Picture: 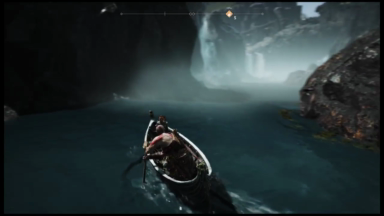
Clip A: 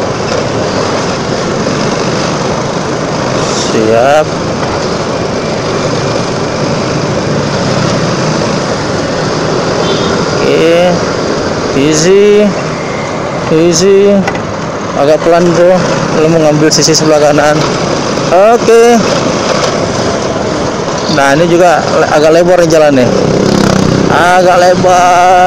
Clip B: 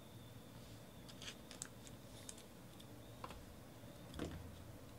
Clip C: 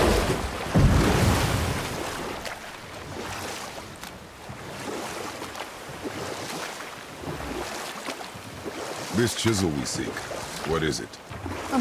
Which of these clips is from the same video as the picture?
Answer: C